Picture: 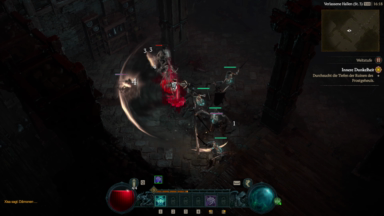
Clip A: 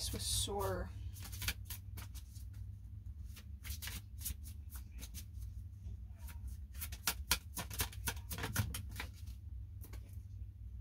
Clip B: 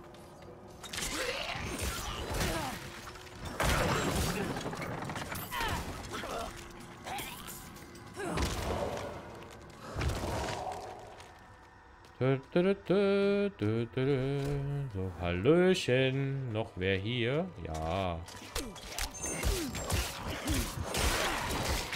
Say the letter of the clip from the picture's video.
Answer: B